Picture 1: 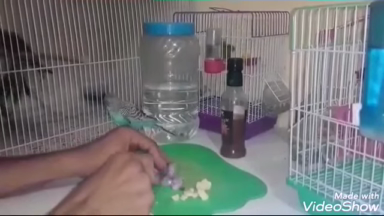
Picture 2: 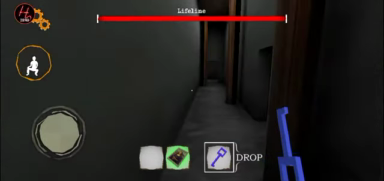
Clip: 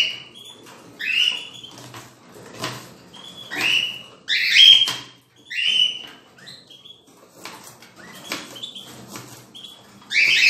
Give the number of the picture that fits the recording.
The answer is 1